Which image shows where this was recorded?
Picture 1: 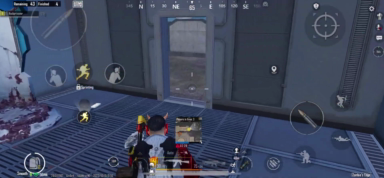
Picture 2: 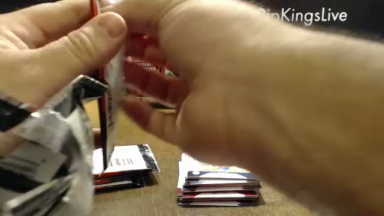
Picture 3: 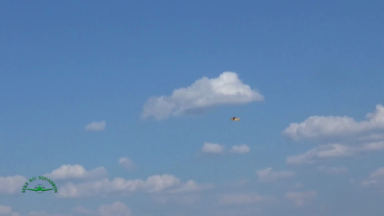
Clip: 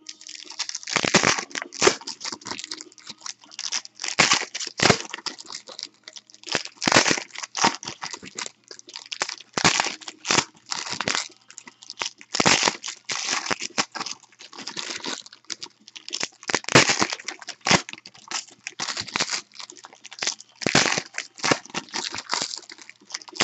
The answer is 2